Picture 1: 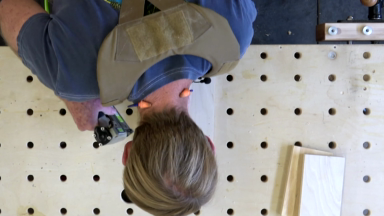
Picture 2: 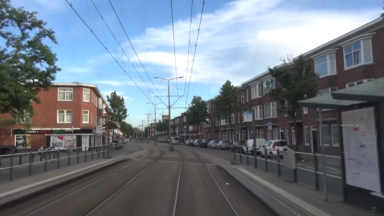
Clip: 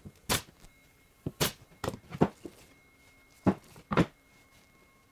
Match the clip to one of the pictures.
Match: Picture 1